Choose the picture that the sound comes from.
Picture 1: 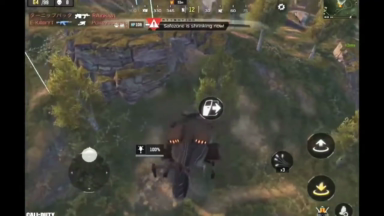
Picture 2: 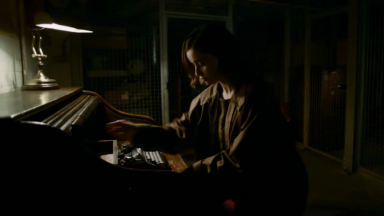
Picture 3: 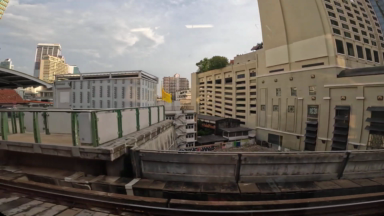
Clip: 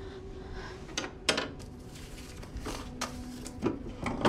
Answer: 2